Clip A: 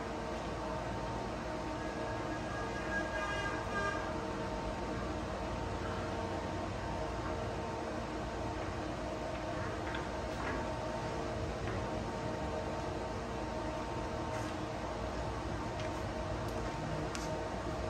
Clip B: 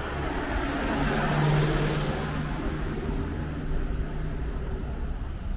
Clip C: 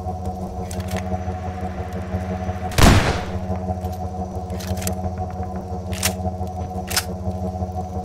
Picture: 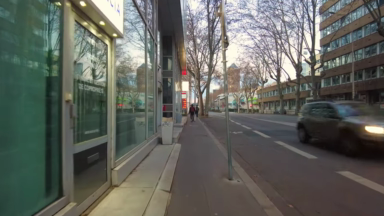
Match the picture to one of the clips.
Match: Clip B